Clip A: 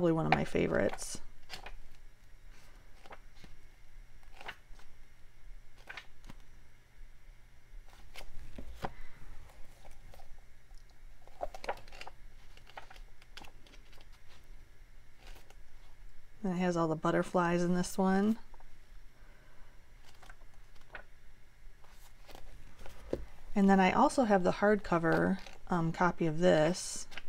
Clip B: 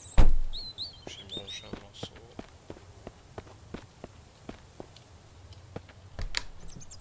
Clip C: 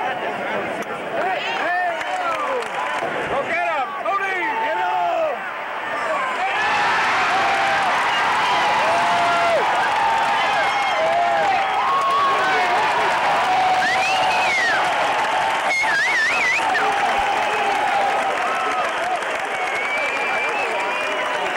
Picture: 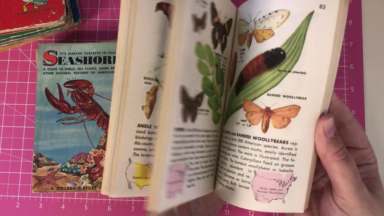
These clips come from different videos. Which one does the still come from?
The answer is A